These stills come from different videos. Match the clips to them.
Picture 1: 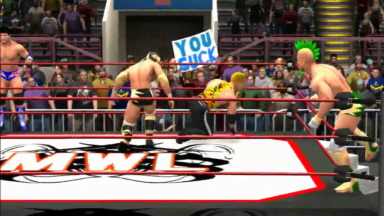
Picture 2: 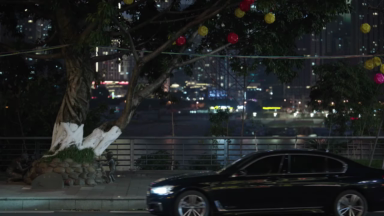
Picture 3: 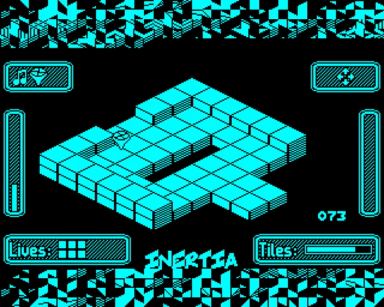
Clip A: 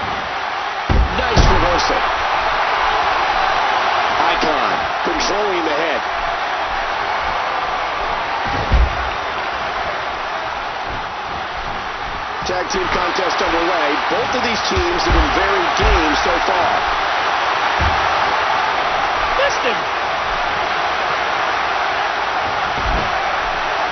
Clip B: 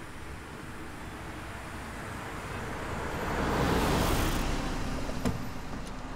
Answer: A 1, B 2